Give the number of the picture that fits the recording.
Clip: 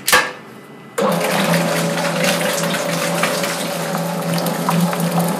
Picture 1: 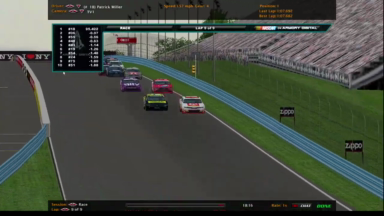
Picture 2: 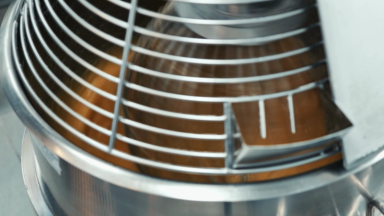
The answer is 2